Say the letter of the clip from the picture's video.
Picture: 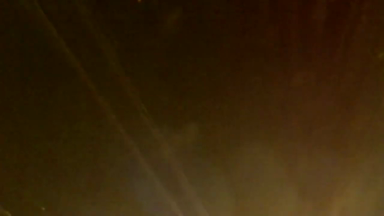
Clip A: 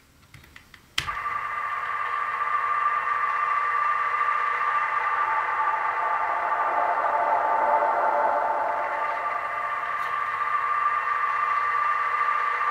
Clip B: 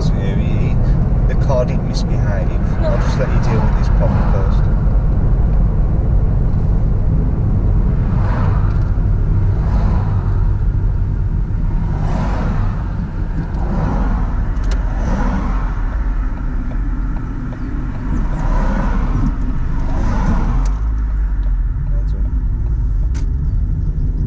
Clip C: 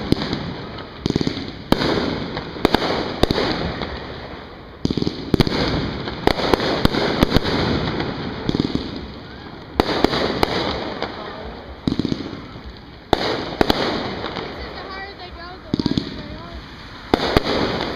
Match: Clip C